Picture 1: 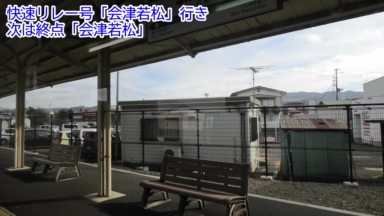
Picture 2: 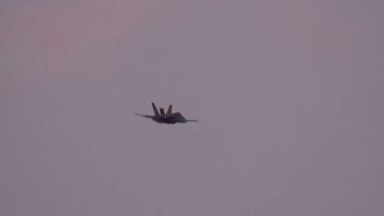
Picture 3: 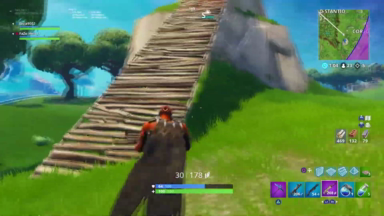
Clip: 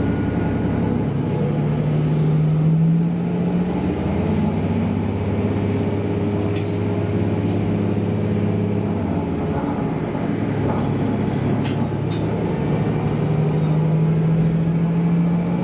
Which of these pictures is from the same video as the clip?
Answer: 1